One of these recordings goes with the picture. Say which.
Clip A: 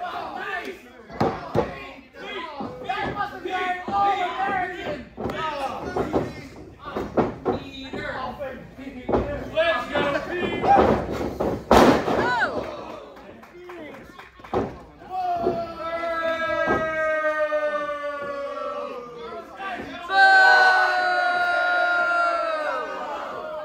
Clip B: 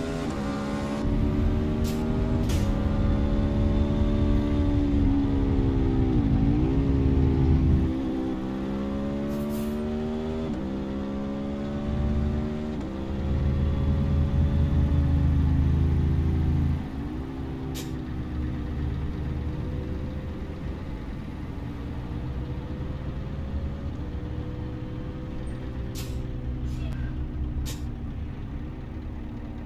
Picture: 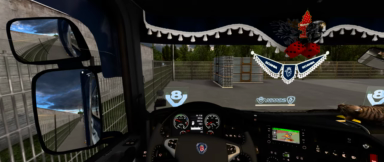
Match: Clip B